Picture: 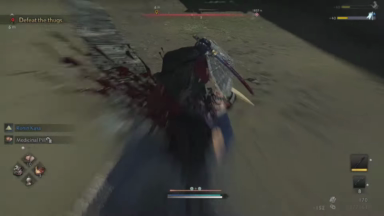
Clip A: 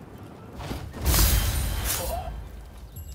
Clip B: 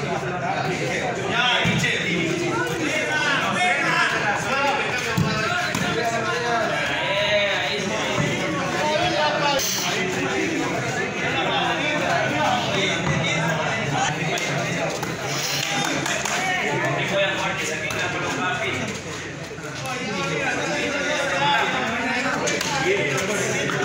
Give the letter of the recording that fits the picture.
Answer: A